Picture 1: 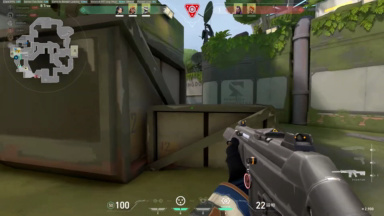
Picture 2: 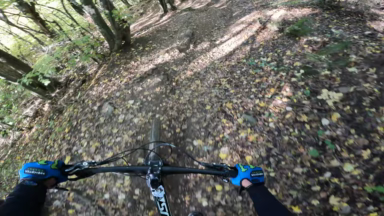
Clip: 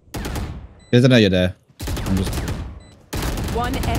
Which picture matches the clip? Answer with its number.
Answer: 1